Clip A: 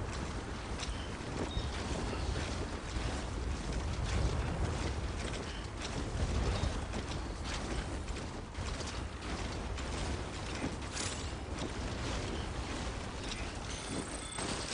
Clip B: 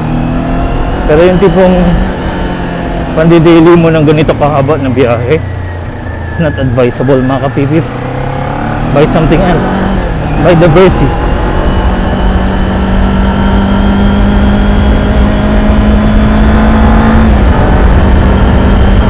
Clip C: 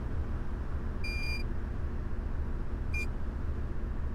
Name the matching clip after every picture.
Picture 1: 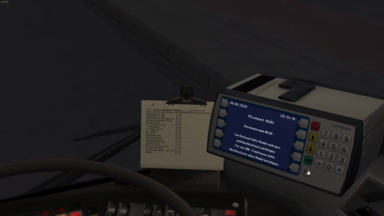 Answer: C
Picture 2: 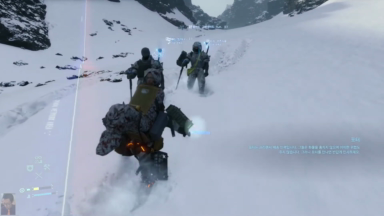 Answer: A